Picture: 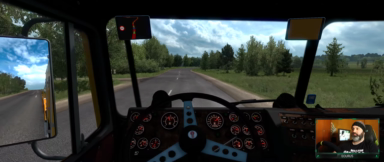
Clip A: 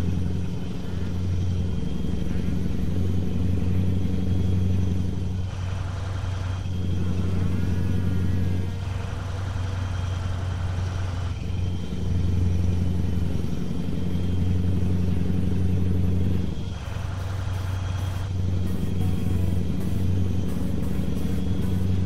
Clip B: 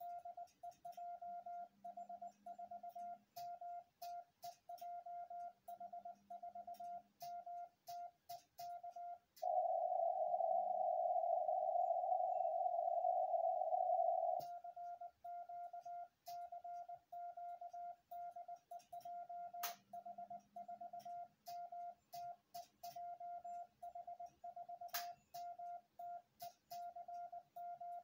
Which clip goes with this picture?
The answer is A